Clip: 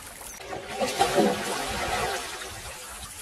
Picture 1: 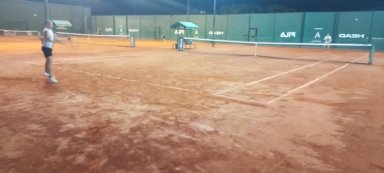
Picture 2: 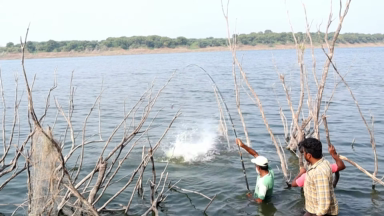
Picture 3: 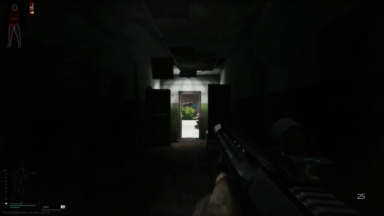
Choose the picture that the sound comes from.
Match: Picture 2